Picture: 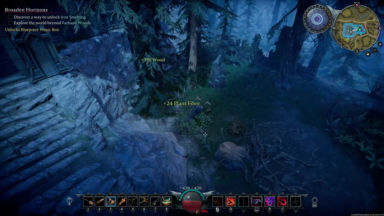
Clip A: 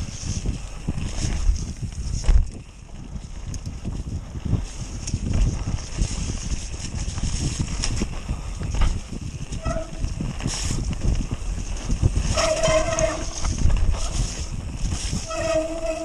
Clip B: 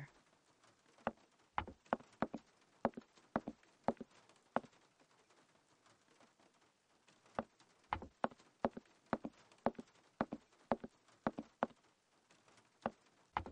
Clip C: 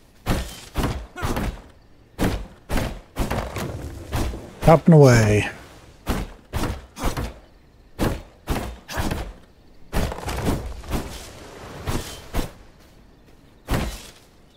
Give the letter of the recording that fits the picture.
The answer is C